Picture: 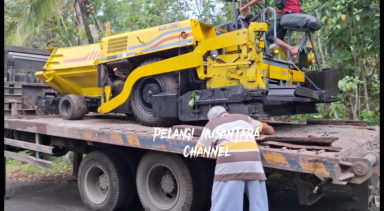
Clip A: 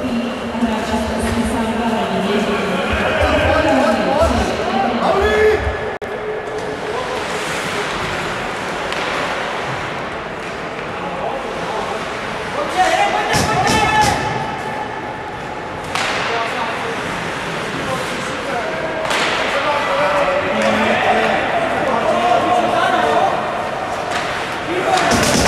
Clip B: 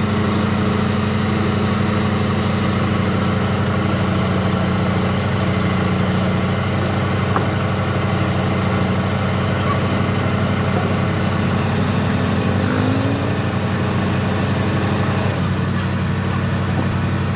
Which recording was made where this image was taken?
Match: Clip B